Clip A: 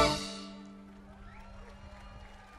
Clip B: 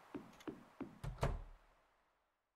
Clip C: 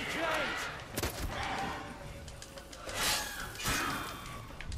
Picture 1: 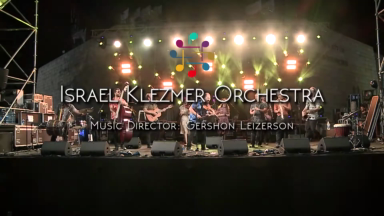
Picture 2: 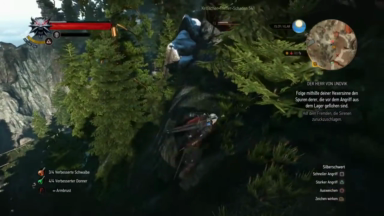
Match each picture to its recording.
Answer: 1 A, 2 C